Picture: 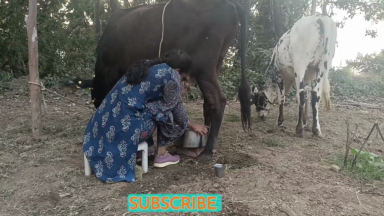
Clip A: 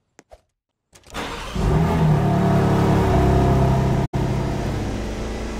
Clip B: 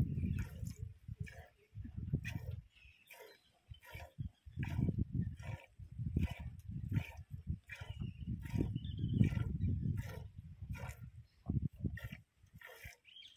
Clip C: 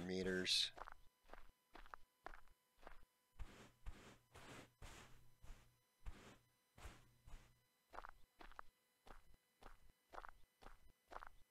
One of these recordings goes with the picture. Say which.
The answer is B